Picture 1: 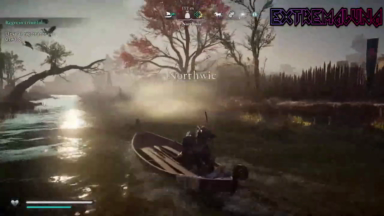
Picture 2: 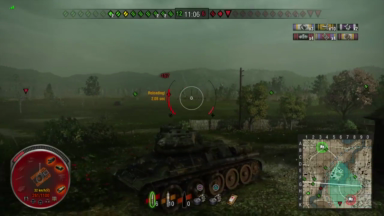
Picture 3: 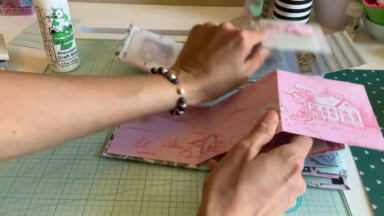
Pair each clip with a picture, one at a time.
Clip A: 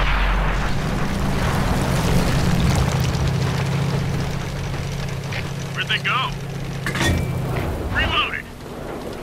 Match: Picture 2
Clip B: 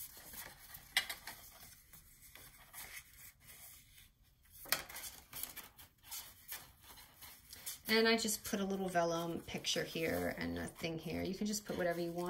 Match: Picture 3